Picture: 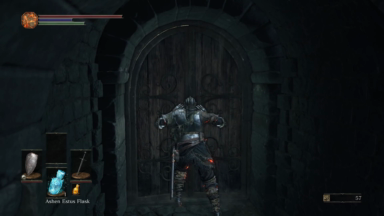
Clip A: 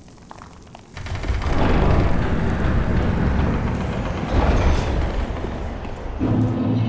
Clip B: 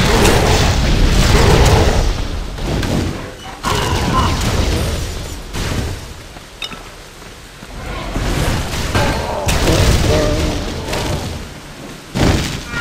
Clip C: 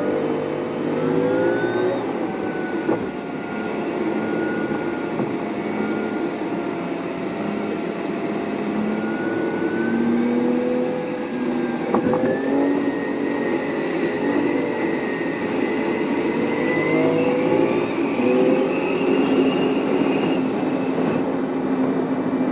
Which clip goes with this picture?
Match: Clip A